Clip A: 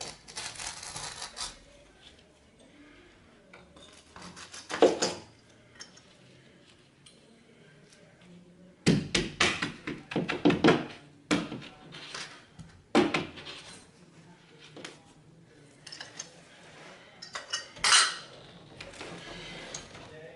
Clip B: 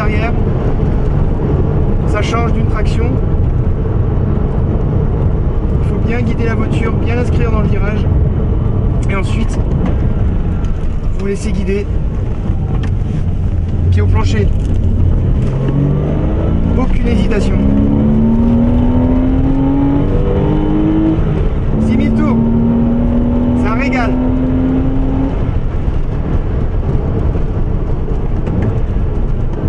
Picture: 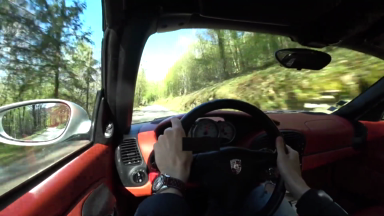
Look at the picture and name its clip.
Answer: B